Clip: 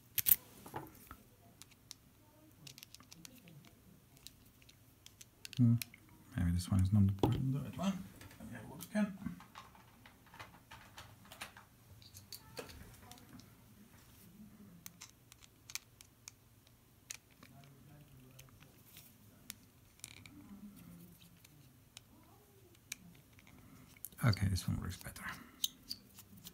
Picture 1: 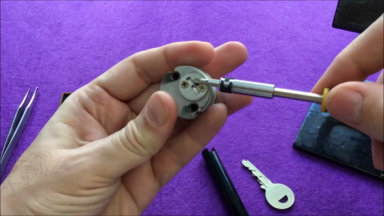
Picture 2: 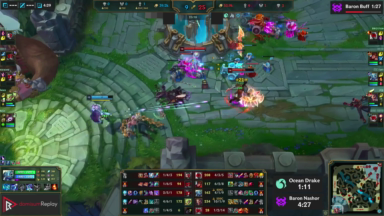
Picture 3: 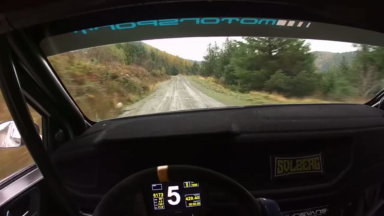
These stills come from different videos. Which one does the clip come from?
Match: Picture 1